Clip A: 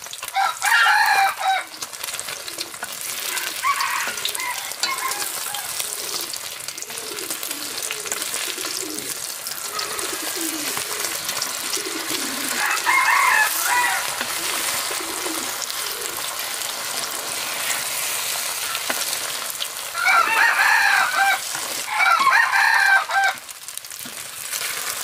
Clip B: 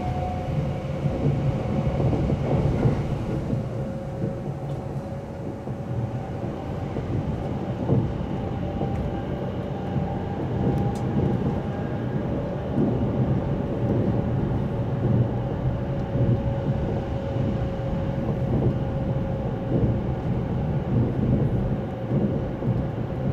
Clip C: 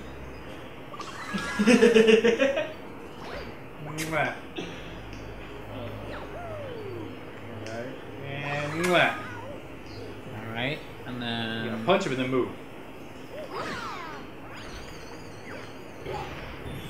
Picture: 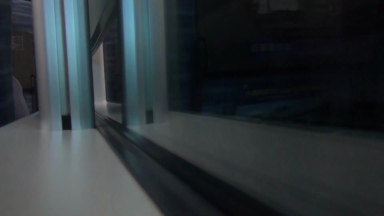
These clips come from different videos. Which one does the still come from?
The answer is B